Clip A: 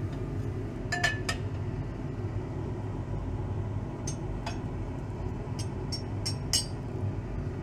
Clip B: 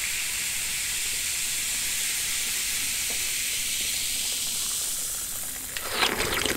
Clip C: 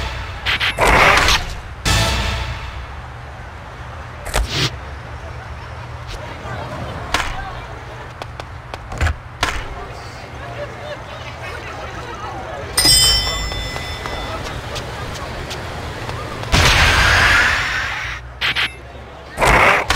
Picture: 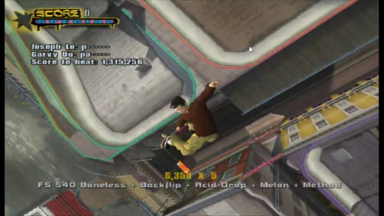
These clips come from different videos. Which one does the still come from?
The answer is C